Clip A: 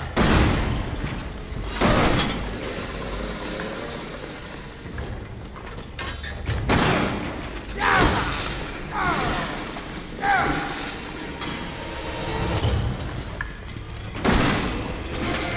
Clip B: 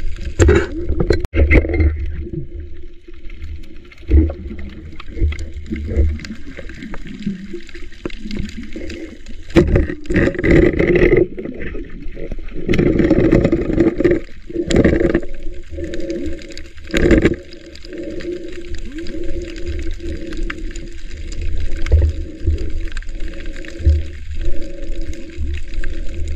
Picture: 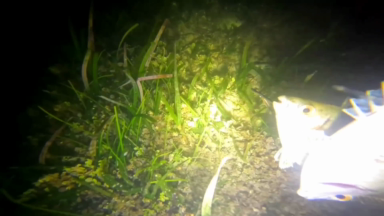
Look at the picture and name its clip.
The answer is B